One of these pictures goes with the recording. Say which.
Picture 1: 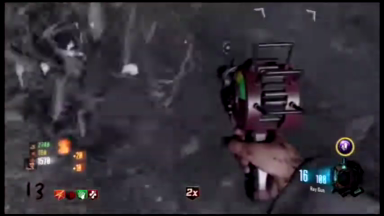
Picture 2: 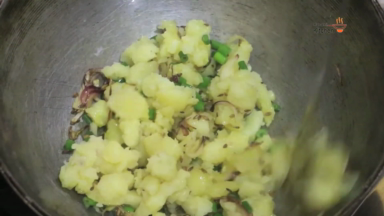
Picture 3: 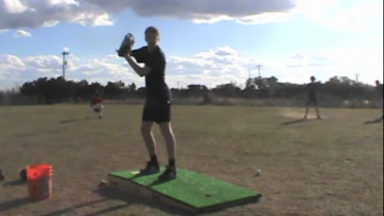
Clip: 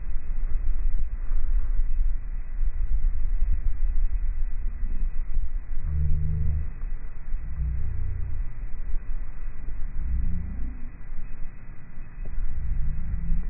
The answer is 3